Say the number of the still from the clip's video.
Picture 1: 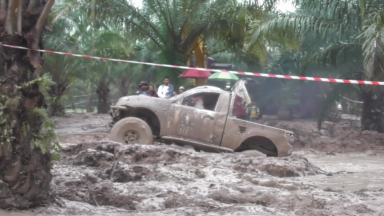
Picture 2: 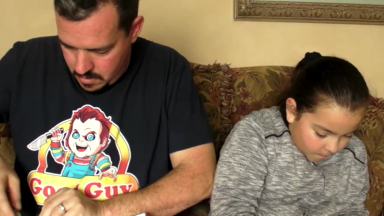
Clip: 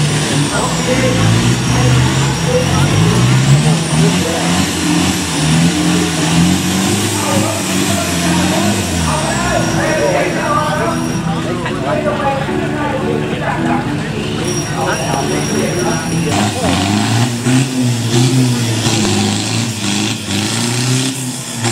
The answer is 1